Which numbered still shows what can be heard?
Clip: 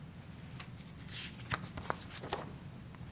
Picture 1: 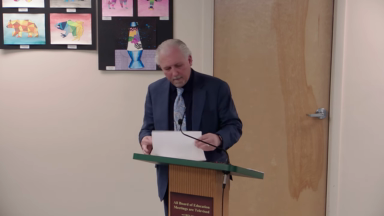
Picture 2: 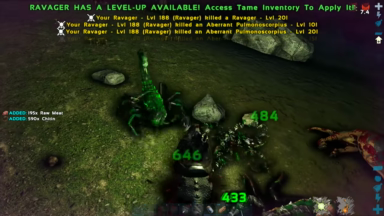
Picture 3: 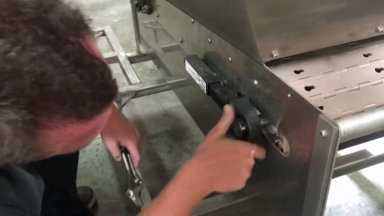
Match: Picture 1